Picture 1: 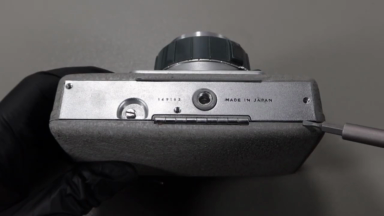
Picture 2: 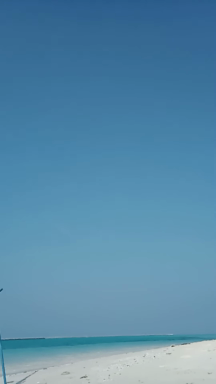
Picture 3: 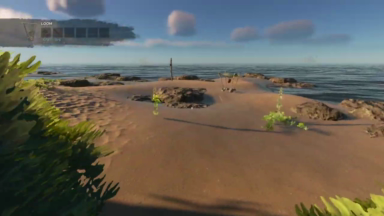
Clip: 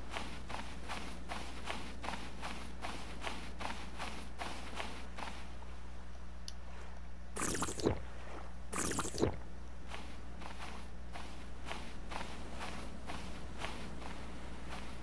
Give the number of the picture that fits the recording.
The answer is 3